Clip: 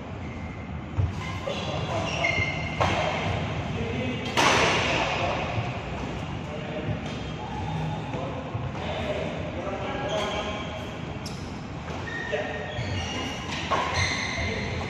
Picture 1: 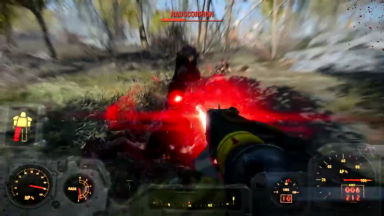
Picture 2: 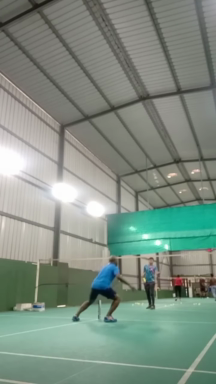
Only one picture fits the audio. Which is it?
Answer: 2